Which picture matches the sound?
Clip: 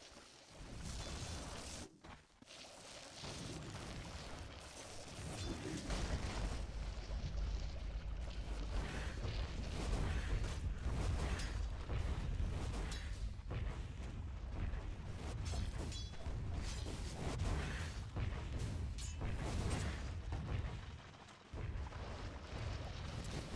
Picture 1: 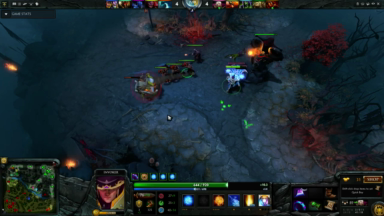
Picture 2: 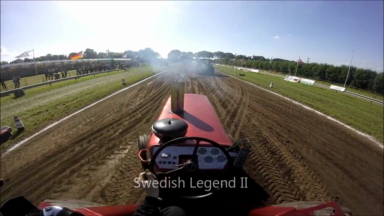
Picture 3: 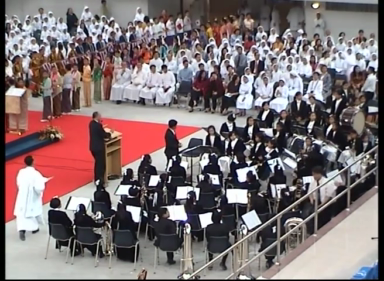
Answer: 1